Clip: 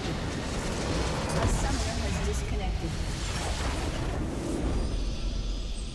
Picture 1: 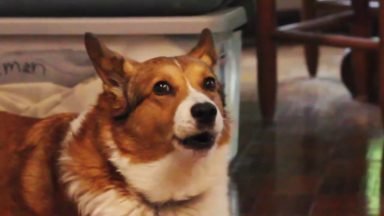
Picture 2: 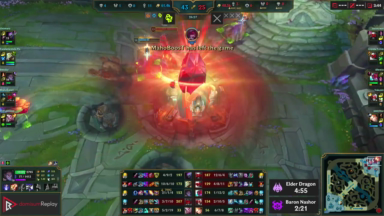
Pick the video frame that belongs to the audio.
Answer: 2